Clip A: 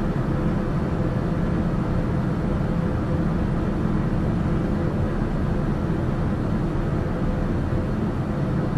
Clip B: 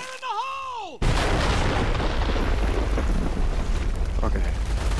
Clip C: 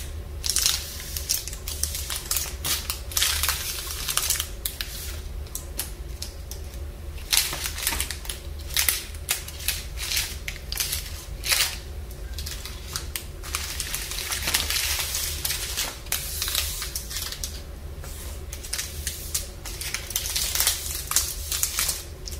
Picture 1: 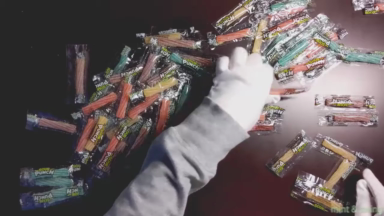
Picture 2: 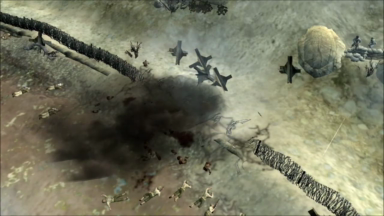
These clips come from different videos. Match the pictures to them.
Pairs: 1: C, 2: B